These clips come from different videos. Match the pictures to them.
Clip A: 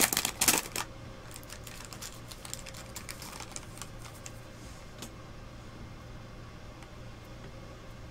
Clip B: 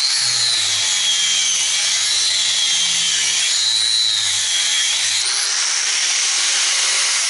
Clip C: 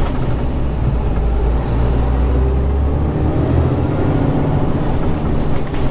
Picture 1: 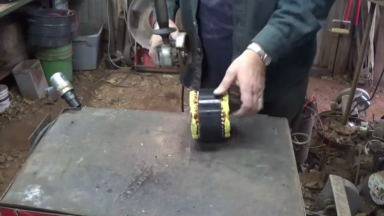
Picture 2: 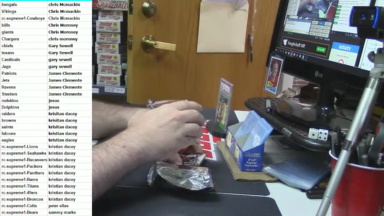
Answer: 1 B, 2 A